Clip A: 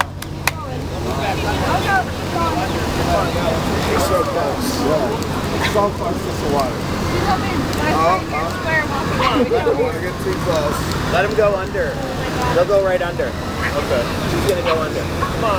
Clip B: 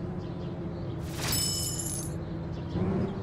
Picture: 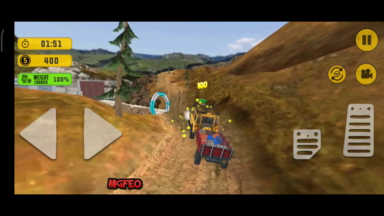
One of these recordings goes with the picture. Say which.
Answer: B